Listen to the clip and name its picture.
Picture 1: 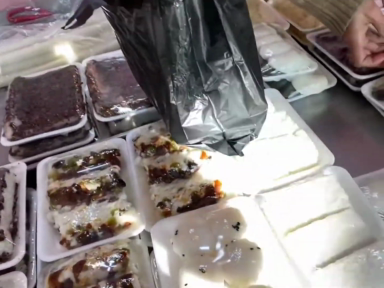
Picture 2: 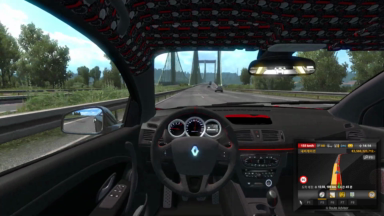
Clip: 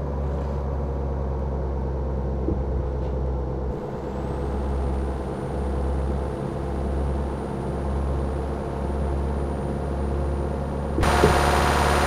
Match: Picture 2